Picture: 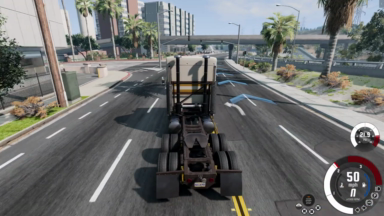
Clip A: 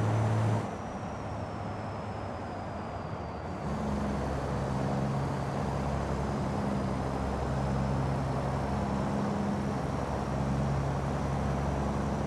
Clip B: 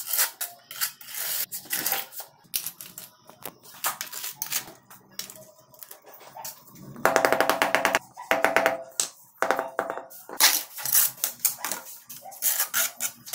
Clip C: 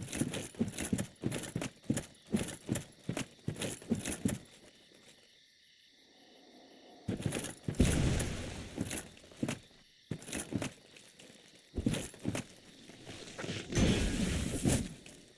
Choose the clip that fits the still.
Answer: A